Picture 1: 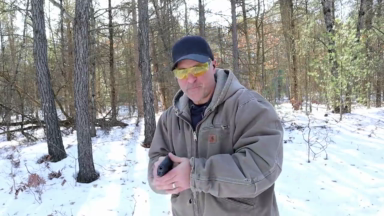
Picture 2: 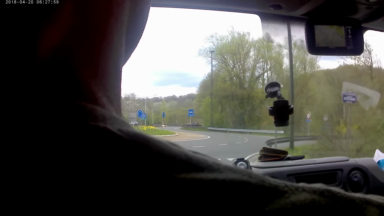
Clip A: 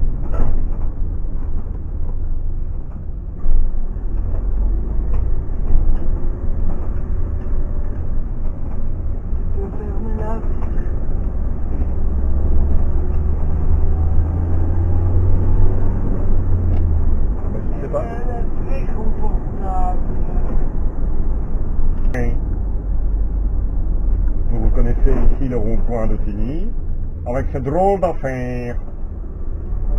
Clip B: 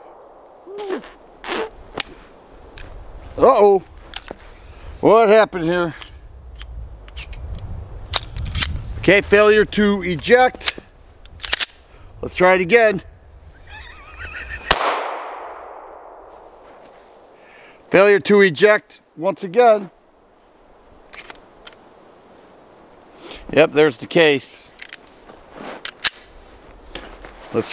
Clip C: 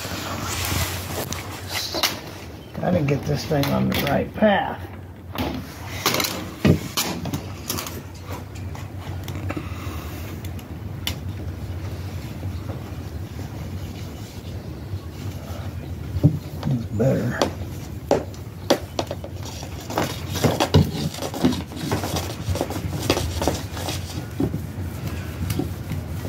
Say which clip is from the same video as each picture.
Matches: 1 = B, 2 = A